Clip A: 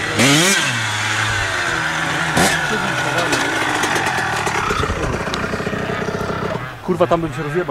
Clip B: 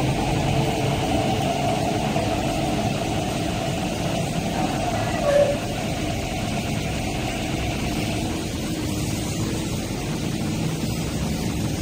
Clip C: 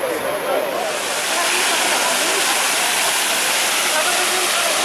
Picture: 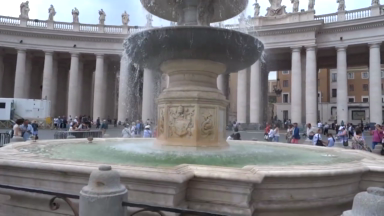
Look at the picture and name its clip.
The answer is C